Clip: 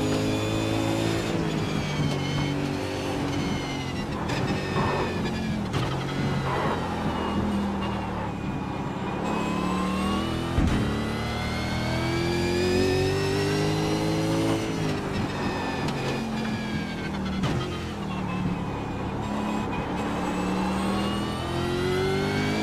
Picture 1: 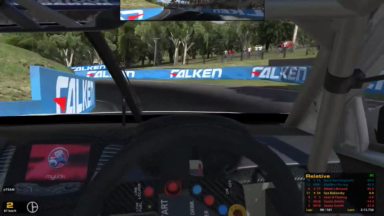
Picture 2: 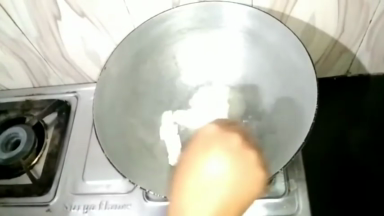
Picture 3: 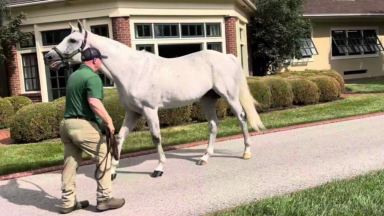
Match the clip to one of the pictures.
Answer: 1